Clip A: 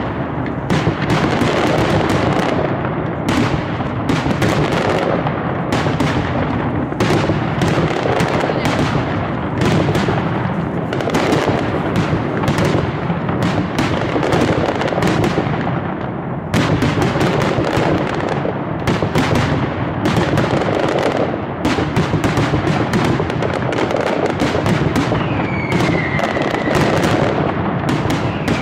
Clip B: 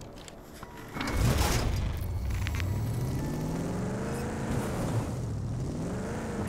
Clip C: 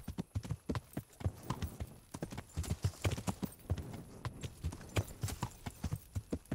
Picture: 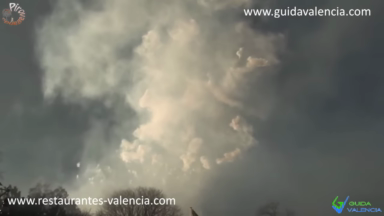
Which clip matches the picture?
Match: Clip A